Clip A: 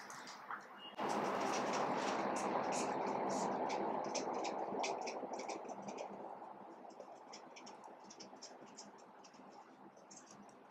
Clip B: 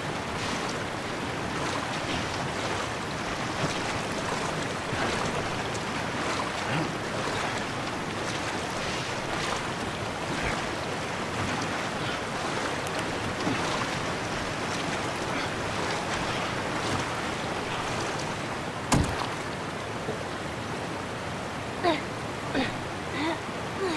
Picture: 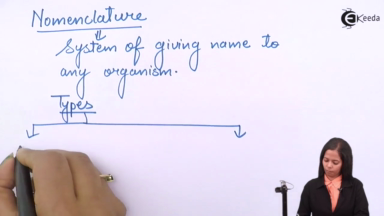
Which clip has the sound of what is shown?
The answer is A